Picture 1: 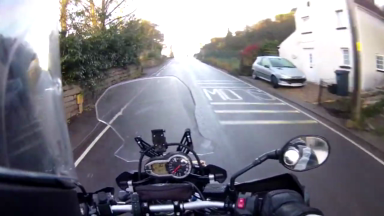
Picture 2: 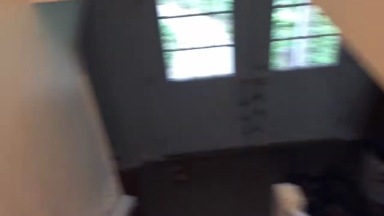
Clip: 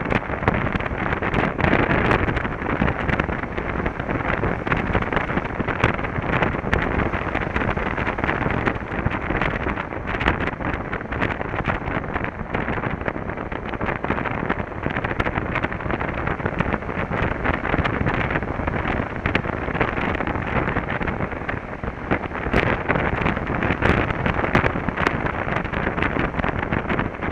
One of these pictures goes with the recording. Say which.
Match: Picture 1